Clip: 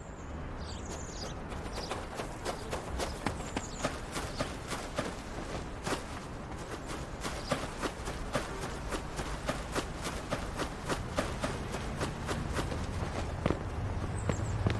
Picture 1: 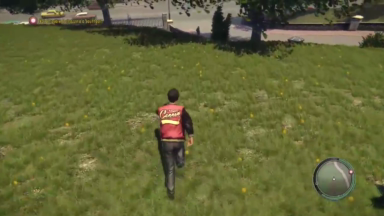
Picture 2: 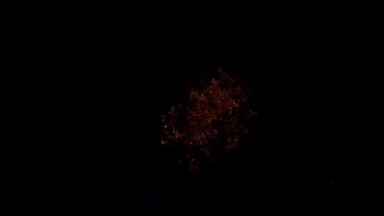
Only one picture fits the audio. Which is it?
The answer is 1